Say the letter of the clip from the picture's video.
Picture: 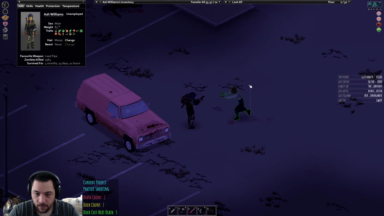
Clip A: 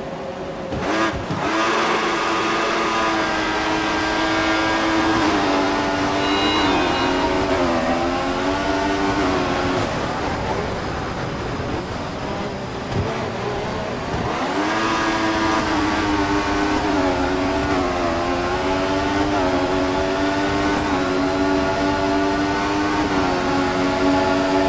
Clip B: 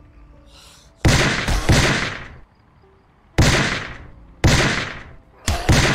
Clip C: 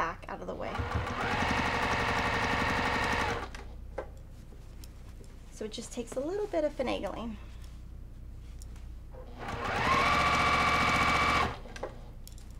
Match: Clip B